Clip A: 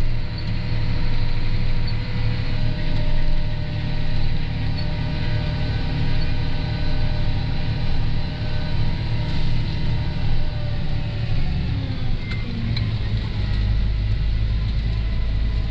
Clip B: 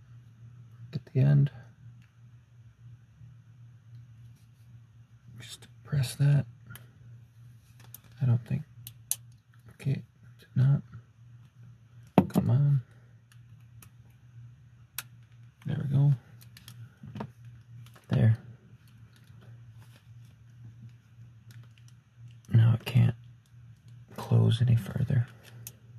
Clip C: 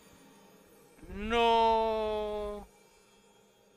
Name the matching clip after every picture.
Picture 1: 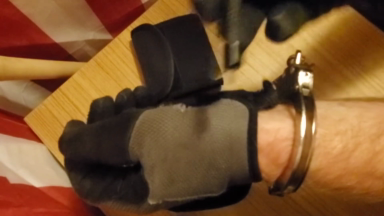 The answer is B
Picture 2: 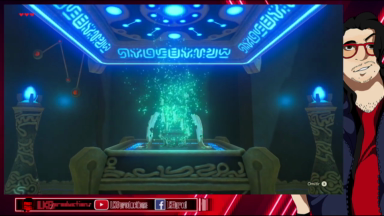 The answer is C